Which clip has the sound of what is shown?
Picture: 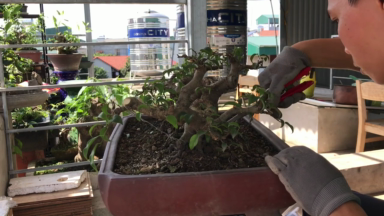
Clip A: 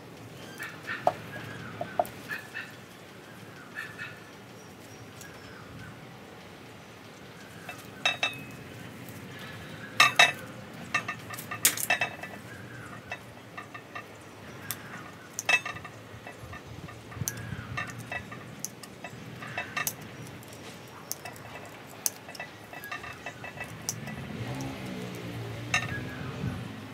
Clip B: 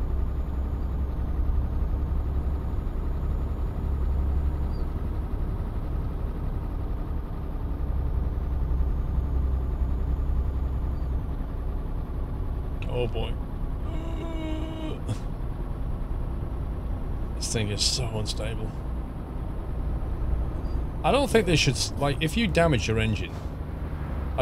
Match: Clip A